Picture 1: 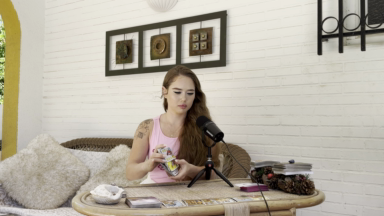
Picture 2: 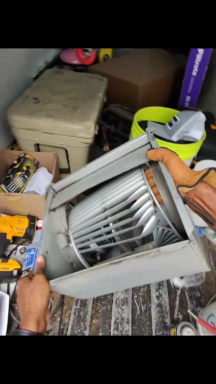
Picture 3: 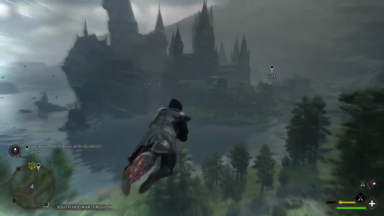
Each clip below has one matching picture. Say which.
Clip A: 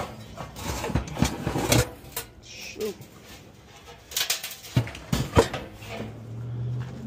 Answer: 2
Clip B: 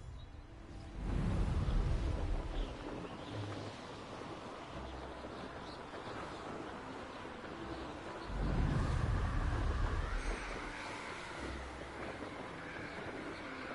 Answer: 3